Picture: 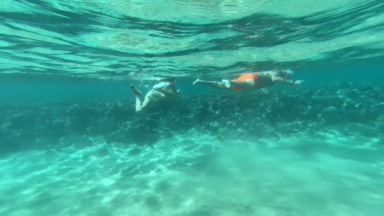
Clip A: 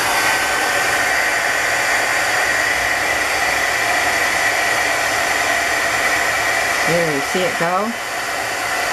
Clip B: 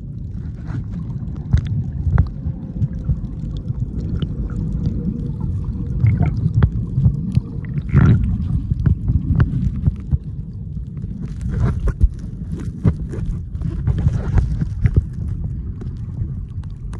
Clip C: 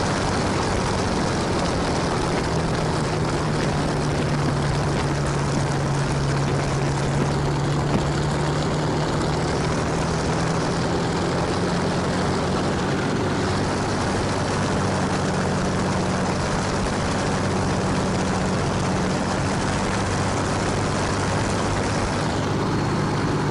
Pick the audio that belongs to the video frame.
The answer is B